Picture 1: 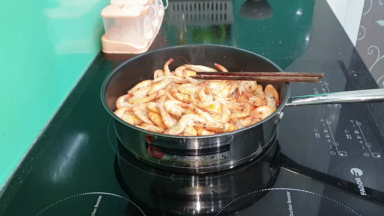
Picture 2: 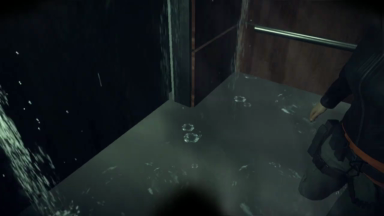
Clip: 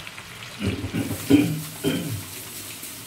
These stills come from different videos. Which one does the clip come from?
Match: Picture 1